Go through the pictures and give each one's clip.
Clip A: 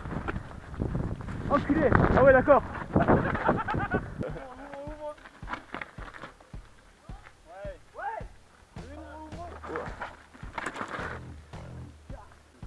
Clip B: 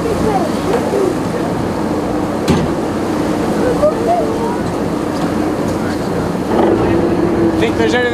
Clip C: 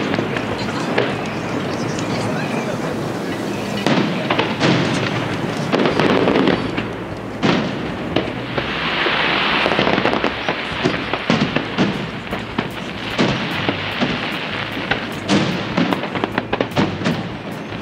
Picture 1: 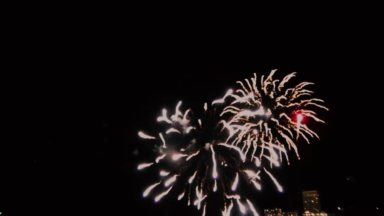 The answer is C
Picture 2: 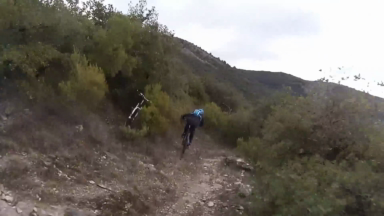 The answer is A